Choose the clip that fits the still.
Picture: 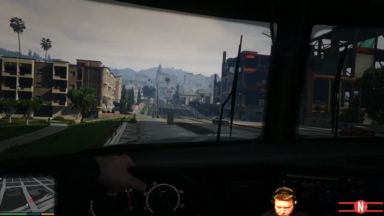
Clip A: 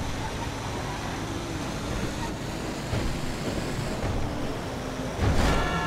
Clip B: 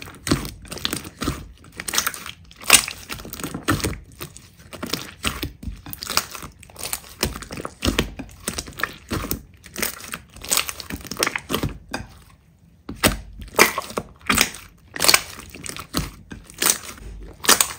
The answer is A